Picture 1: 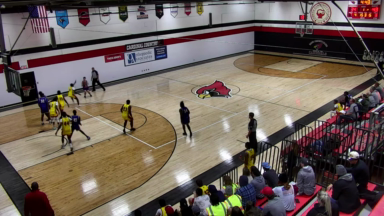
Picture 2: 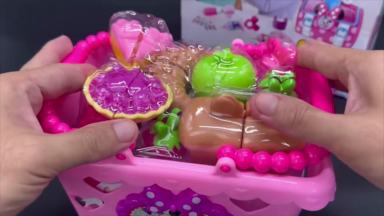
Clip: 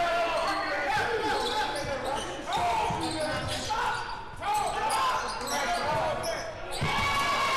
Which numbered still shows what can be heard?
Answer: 1